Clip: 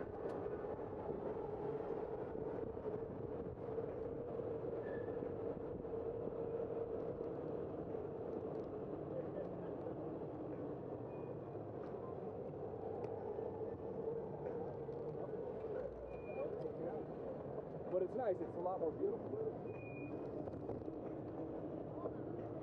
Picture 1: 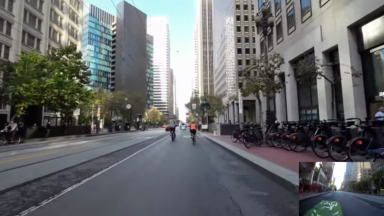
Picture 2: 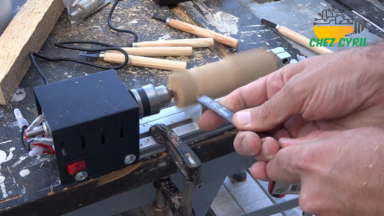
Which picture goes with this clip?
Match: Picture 1